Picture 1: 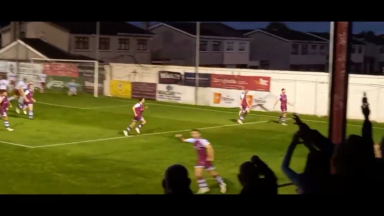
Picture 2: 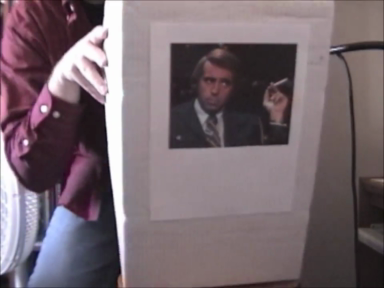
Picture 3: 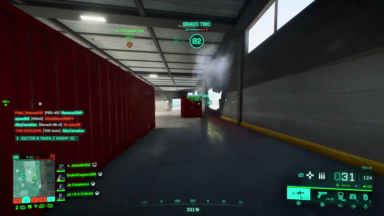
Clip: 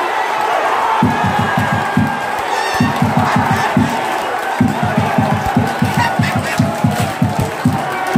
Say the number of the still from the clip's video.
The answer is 1